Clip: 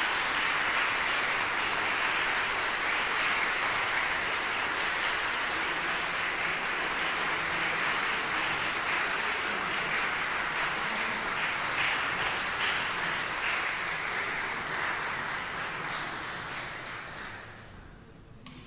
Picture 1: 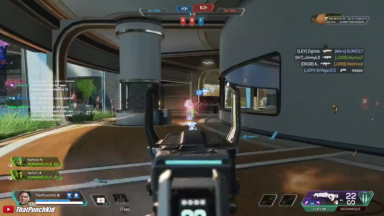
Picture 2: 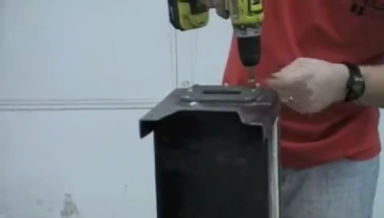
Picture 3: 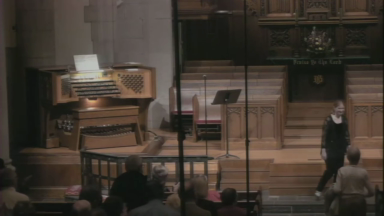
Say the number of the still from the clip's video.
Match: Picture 3